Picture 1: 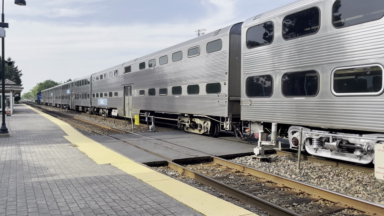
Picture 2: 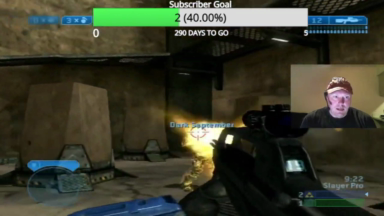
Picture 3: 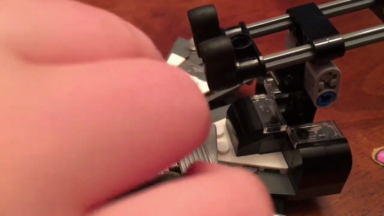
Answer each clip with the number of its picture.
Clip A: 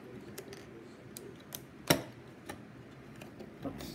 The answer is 3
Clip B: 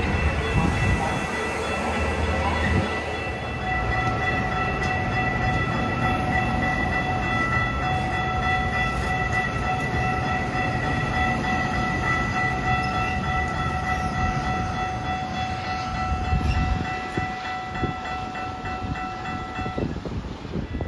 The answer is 1